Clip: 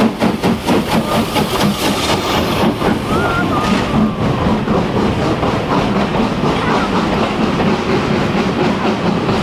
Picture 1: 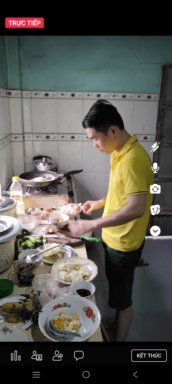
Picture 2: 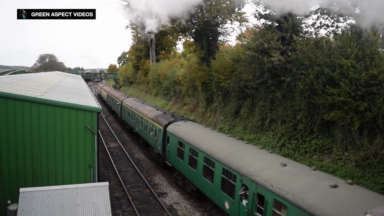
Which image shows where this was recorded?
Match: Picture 2